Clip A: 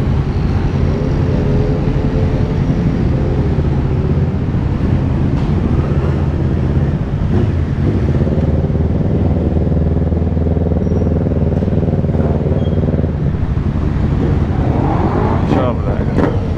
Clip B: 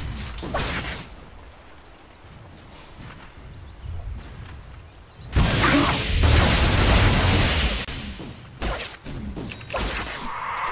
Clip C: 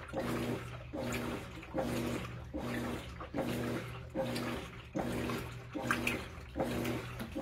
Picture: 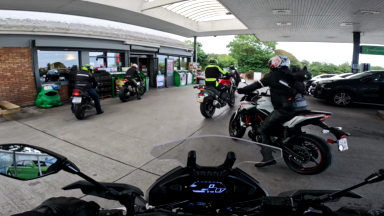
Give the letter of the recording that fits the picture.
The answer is A